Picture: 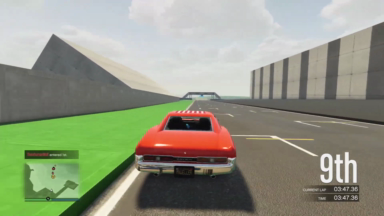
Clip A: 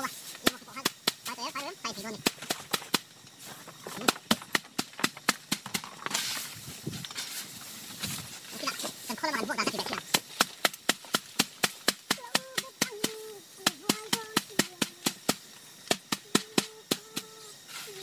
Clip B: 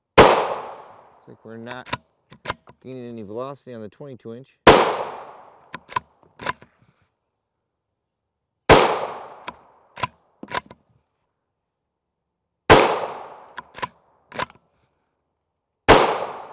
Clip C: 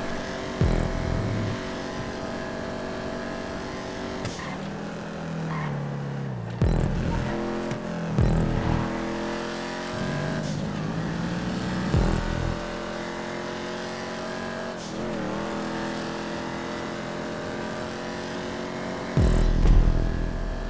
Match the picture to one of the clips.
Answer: C